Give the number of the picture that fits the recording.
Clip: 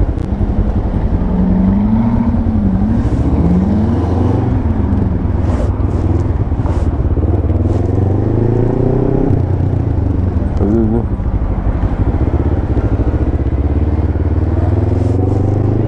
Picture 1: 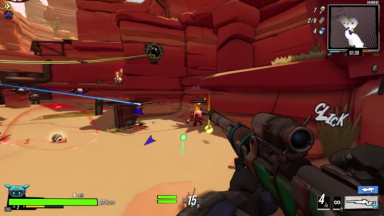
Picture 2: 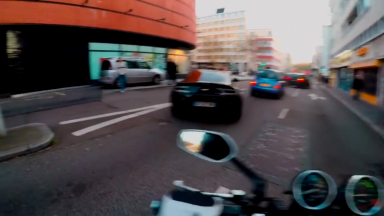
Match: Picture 2